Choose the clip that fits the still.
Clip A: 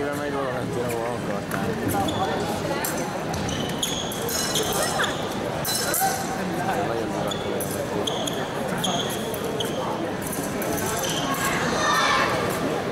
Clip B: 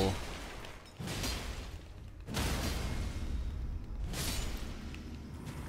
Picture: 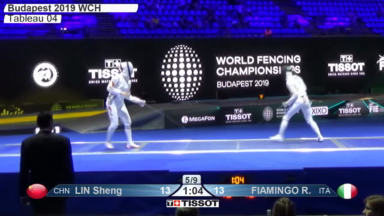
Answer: A